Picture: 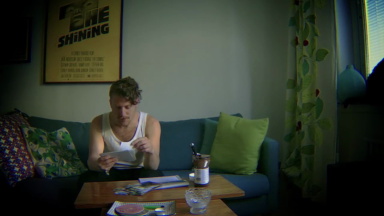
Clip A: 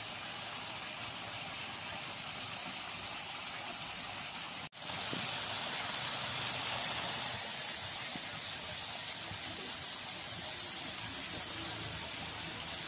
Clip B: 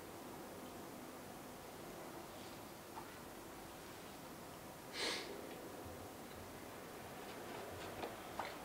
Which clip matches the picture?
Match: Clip B